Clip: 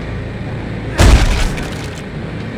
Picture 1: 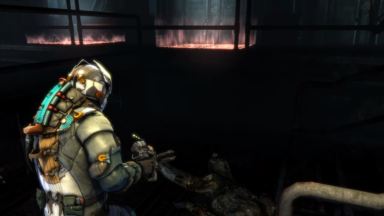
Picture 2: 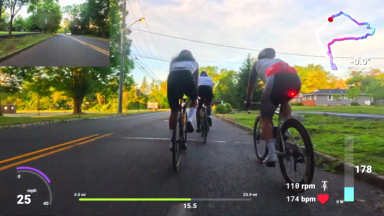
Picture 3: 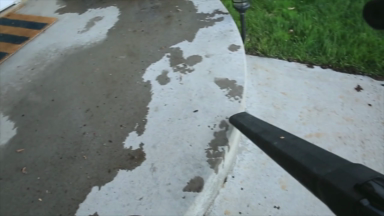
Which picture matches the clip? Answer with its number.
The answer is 1